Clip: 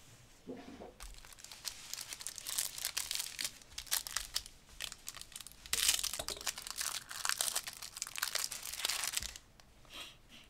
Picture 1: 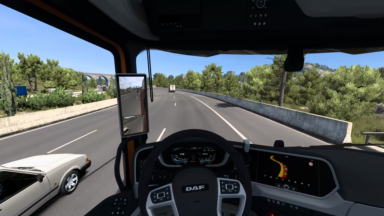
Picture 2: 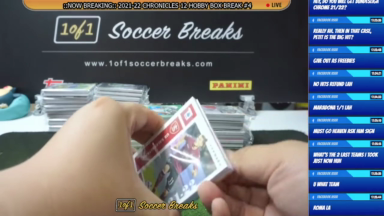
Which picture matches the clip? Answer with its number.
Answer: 2